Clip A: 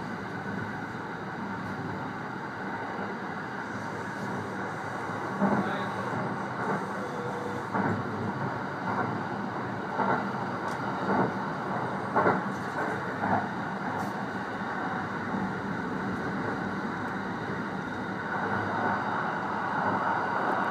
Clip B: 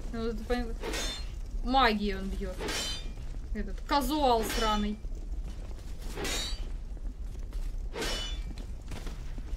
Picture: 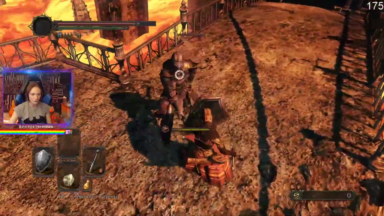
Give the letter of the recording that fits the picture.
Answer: B